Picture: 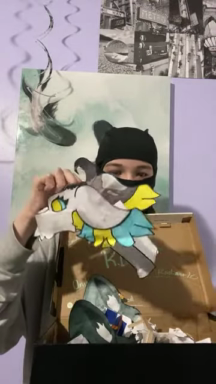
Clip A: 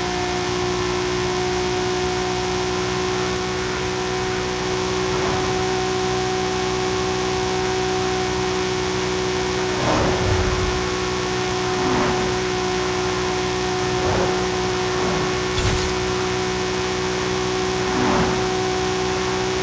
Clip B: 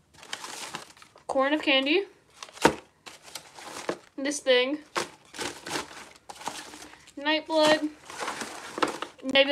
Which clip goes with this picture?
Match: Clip B